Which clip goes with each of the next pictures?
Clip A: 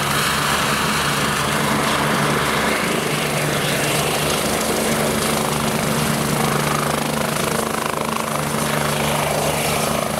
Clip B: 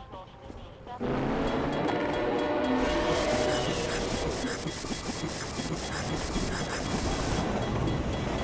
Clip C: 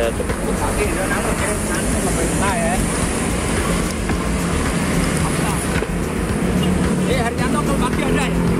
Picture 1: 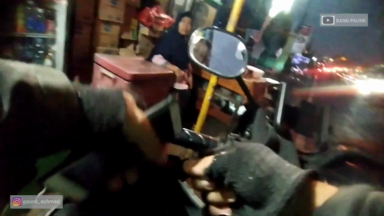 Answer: C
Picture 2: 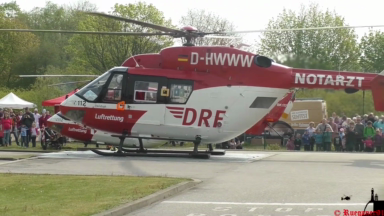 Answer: A